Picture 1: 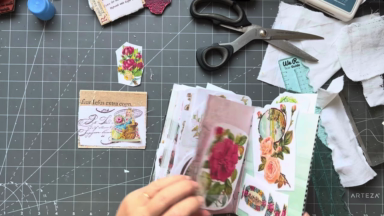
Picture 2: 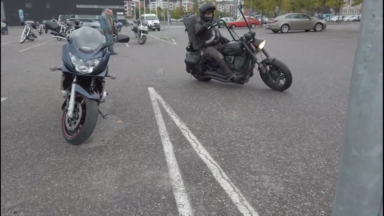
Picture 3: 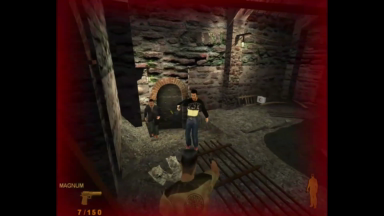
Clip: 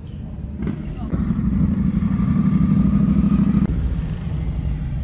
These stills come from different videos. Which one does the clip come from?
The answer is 2